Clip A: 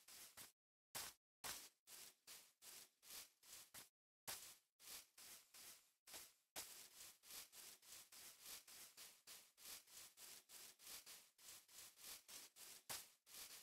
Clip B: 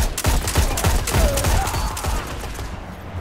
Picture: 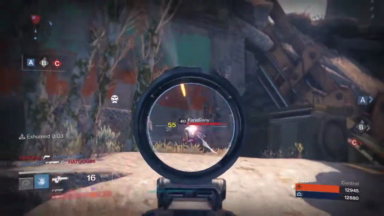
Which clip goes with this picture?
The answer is B